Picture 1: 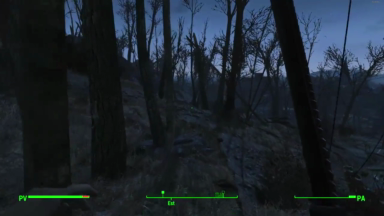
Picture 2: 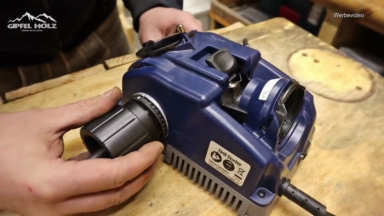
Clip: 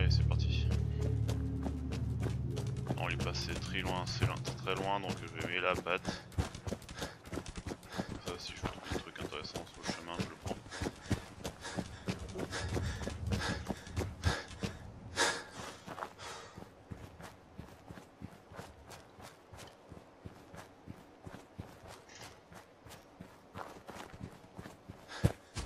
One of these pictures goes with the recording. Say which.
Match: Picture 1